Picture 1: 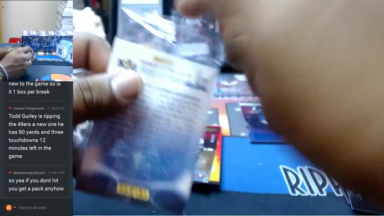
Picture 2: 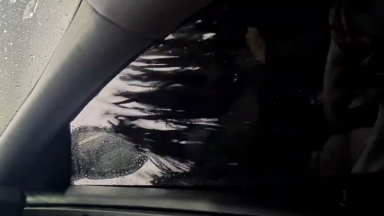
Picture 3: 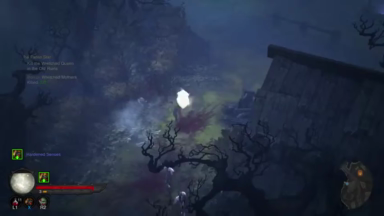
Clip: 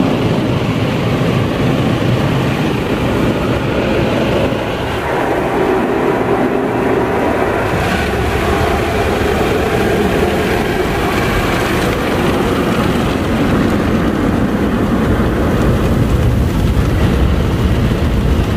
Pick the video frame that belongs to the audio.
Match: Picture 2